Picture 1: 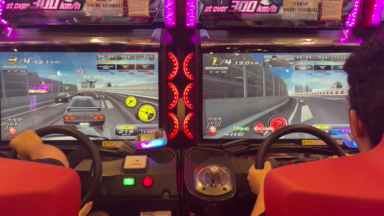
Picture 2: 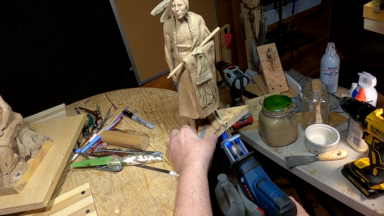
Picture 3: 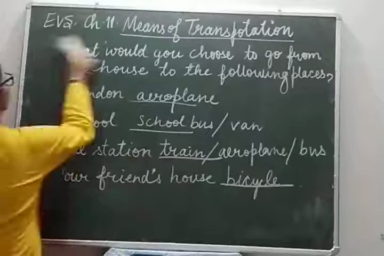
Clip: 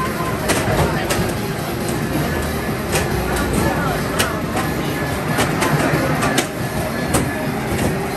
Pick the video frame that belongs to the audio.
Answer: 1